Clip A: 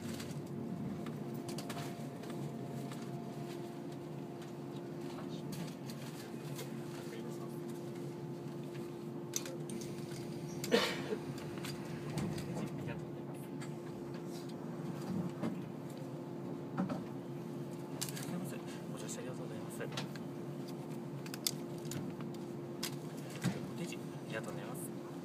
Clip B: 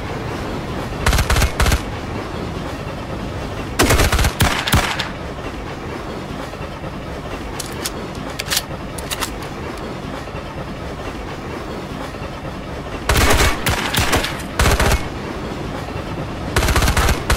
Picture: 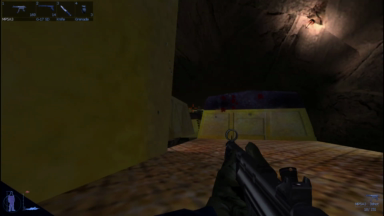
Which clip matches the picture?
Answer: B